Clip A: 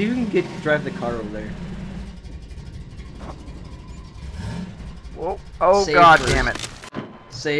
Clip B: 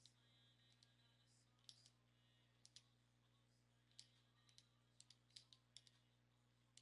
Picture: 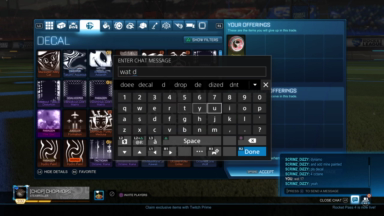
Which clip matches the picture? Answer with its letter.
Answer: B